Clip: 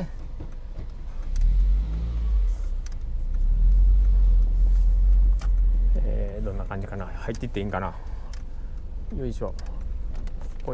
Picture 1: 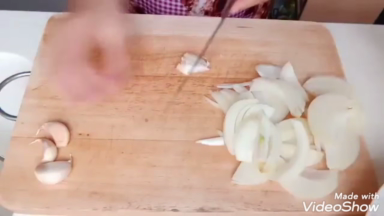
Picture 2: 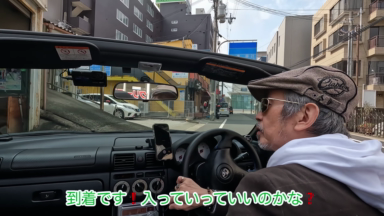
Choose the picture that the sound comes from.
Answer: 2